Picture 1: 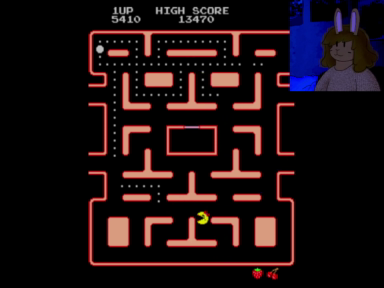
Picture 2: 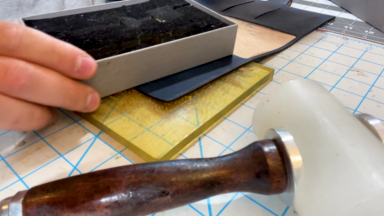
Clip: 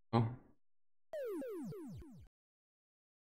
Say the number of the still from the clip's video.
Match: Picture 1